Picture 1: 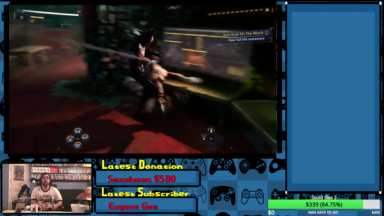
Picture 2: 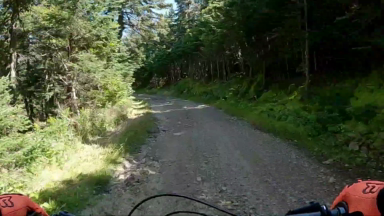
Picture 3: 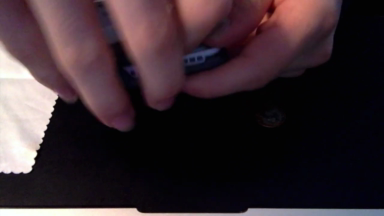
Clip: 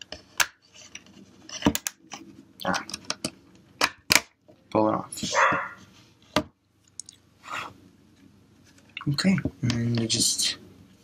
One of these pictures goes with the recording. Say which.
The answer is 3